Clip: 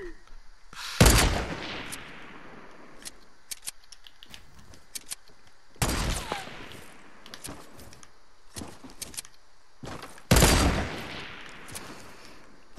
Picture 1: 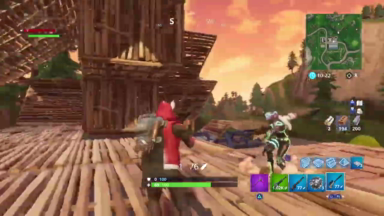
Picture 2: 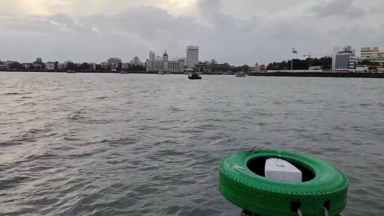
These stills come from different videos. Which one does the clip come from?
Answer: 1